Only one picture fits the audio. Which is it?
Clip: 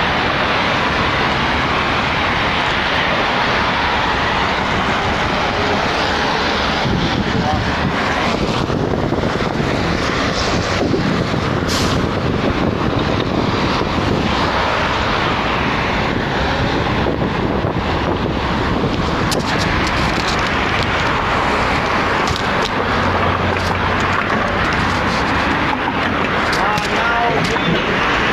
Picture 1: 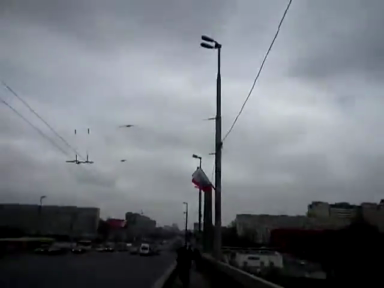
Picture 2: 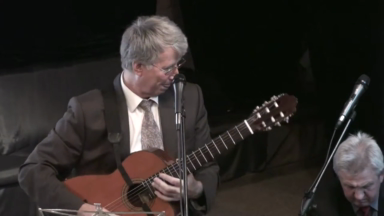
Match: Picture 1